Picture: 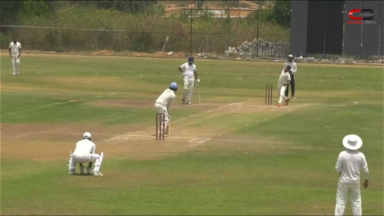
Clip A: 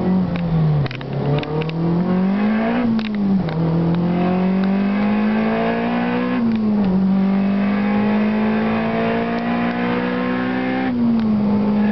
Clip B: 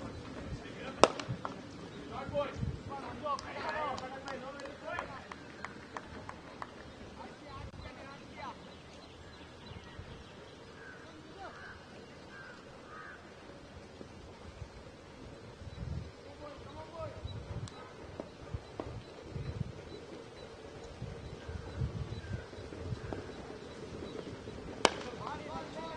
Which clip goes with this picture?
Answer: B